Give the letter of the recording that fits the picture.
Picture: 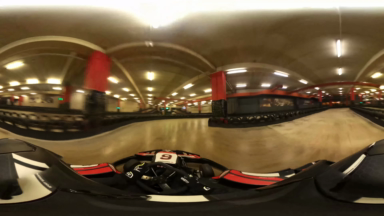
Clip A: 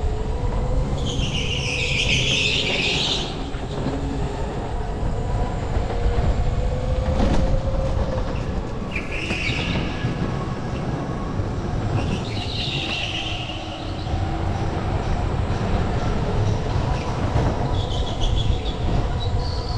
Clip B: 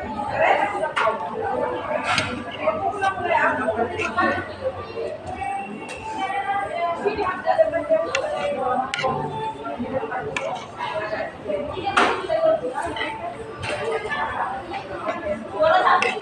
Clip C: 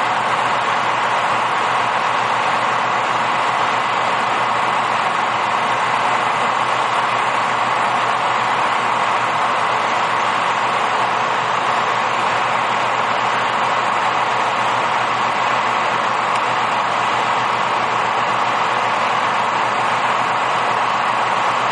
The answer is A